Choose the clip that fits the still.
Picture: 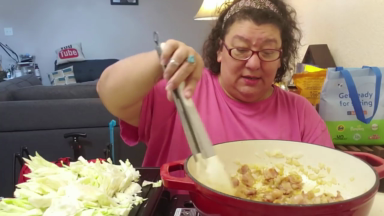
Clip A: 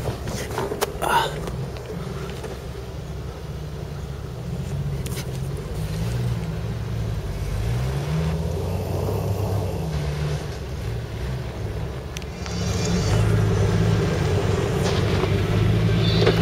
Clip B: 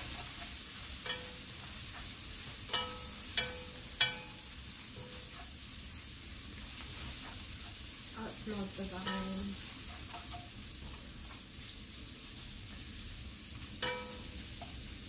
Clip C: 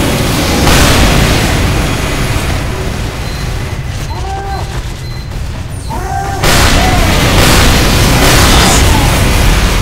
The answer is B